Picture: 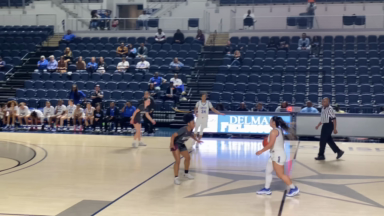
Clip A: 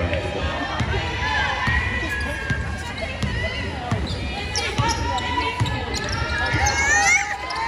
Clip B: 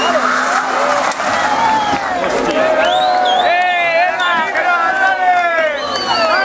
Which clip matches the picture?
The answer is A